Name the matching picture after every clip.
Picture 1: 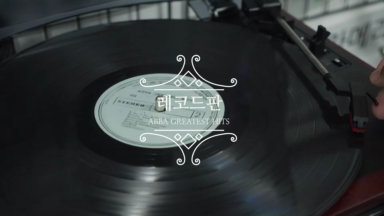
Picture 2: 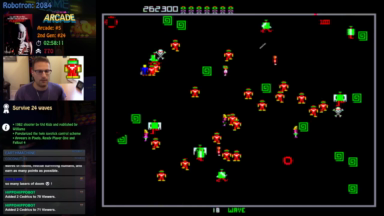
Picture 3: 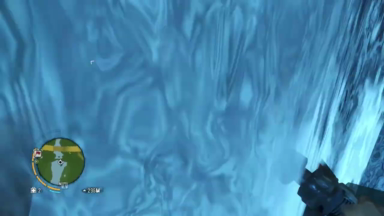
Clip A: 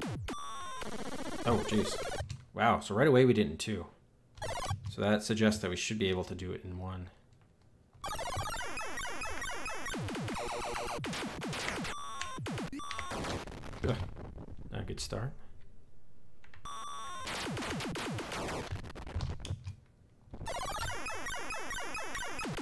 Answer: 2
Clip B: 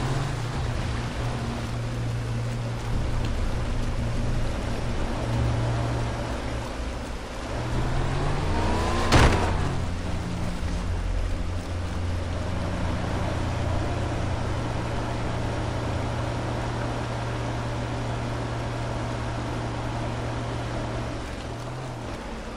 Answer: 3